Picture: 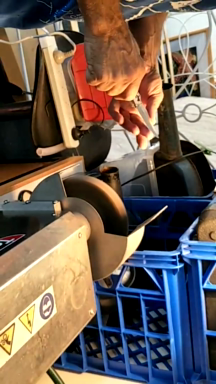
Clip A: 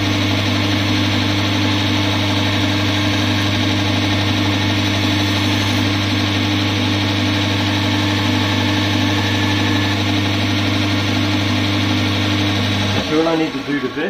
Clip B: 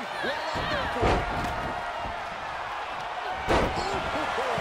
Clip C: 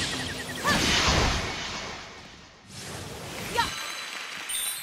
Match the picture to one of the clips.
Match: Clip A